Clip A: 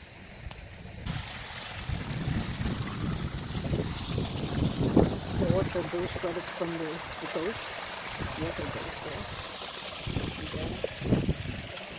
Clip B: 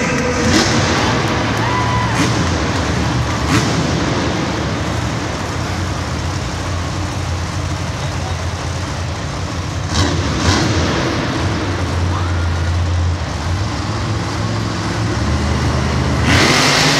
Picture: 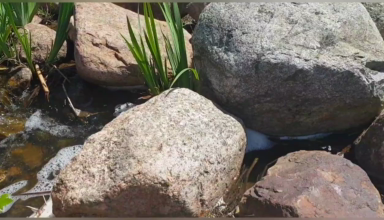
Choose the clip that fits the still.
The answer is A